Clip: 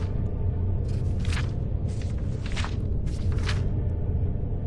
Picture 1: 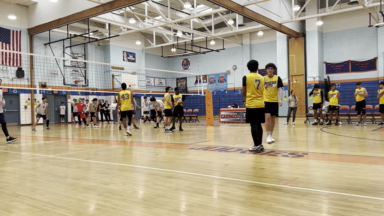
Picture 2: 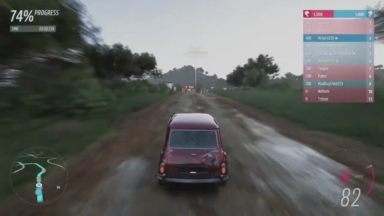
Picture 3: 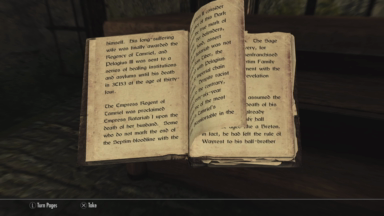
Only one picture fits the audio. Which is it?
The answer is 3